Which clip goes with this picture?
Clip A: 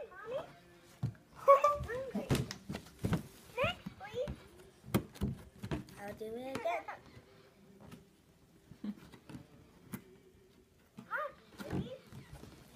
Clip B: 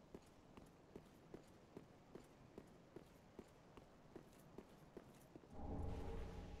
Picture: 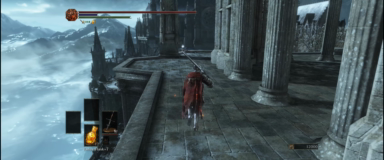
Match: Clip B